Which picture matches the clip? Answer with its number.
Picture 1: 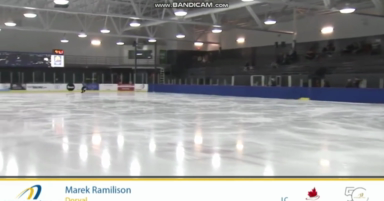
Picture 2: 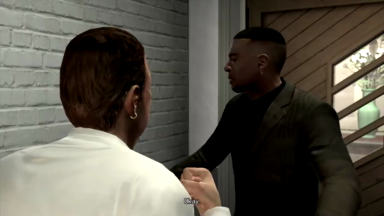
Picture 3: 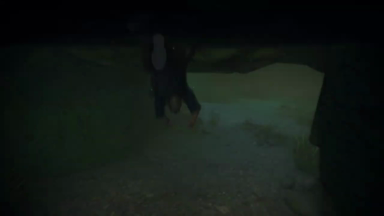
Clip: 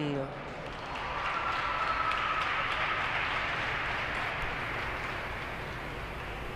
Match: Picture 1